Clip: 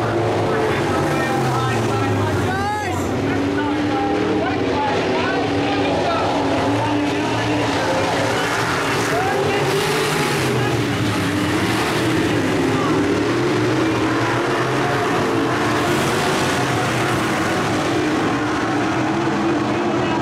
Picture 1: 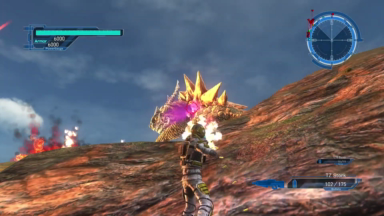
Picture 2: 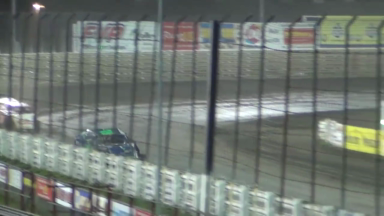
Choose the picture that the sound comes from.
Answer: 2